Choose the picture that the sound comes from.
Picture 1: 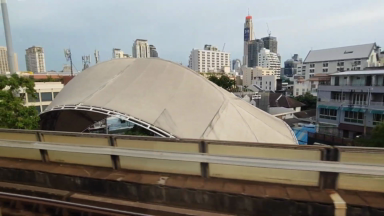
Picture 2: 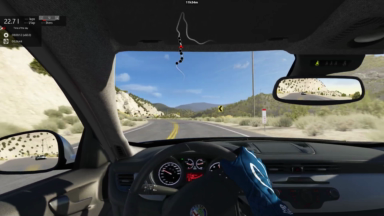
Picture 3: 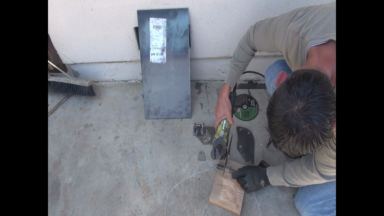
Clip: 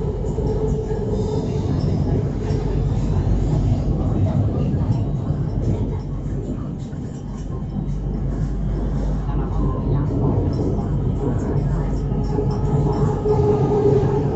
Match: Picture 1